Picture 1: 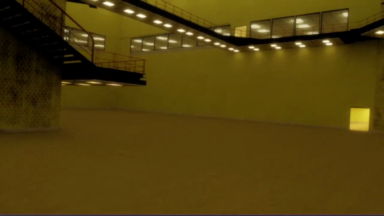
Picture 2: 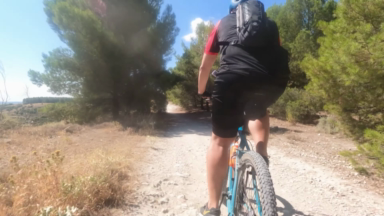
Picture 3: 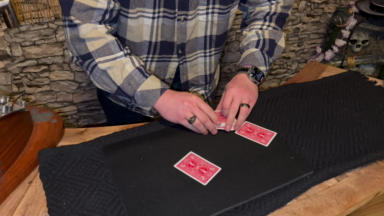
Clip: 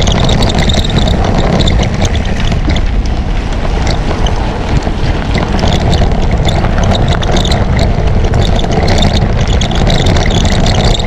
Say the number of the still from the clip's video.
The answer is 2